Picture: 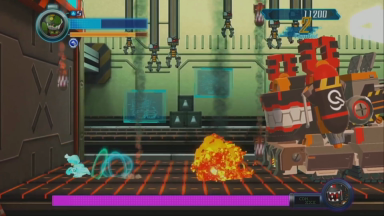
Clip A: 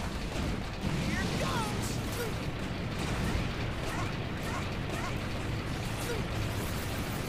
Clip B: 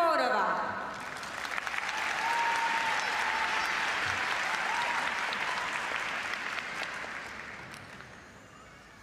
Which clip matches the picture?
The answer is A